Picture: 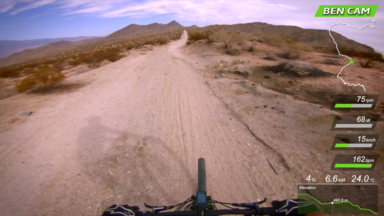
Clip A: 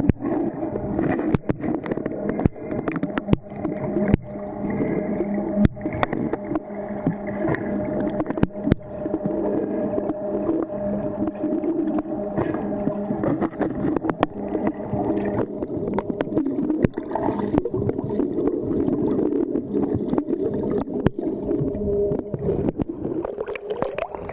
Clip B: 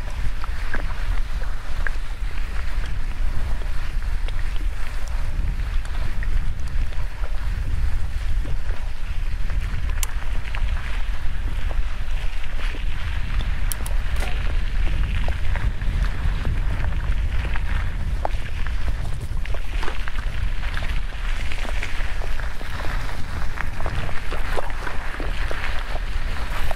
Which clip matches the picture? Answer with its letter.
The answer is B